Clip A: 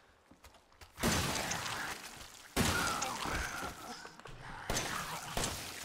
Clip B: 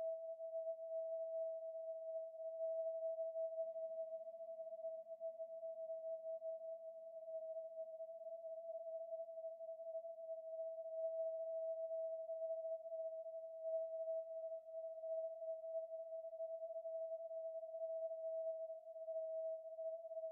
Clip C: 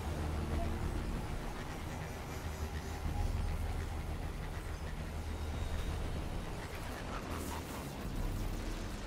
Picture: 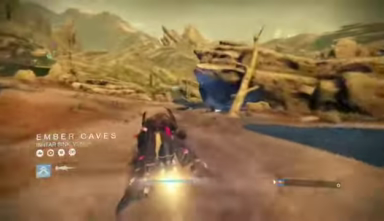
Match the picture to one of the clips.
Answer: C